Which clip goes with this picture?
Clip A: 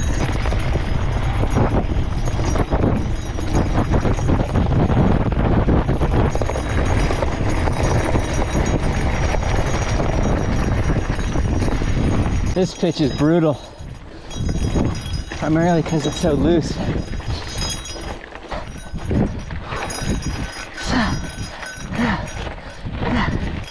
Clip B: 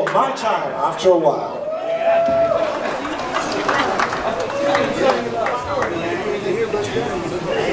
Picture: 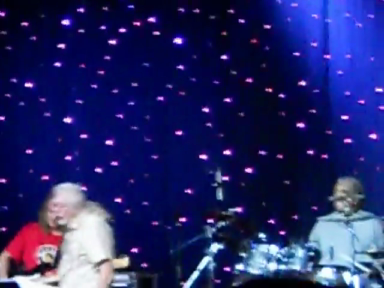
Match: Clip B